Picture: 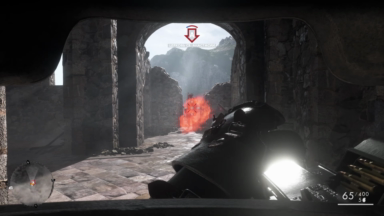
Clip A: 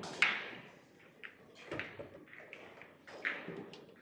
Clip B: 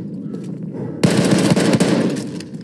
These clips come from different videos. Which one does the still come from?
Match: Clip B